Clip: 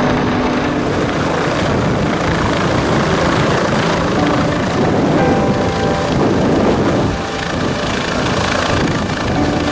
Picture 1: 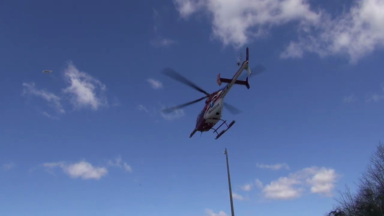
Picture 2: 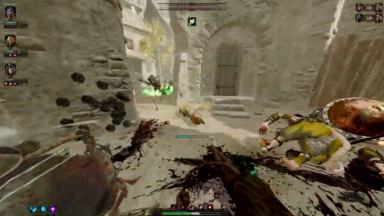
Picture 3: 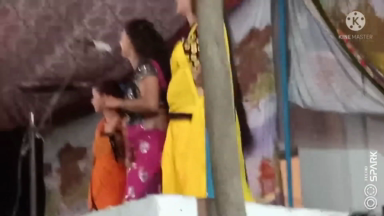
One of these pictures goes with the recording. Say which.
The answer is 1